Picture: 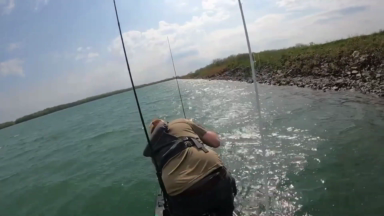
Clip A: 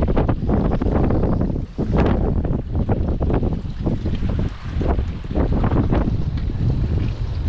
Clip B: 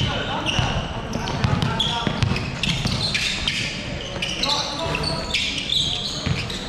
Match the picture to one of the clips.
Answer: A